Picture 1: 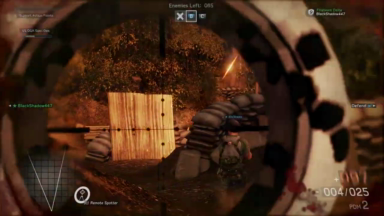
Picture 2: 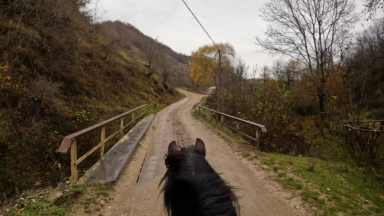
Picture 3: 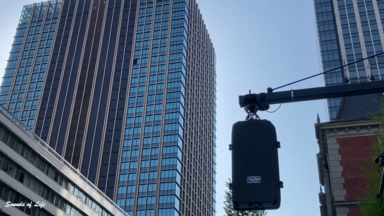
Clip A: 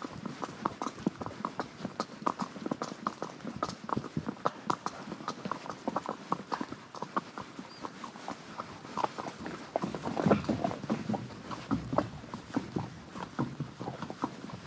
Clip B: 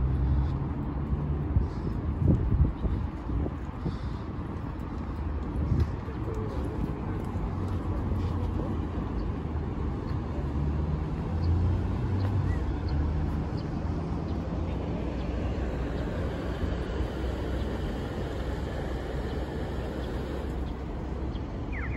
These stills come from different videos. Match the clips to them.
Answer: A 2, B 3